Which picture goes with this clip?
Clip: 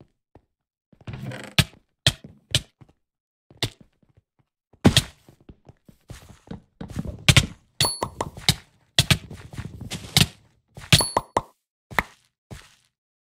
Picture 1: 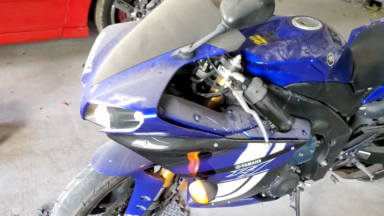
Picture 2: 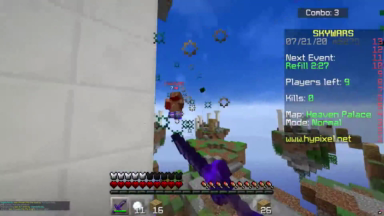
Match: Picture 2